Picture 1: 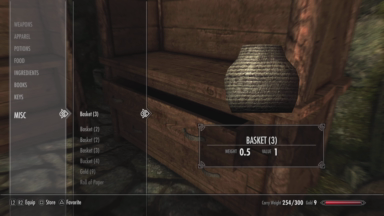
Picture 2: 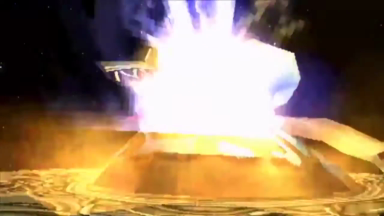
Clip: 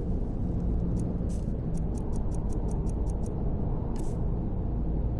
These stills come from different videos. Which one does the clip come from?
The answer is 1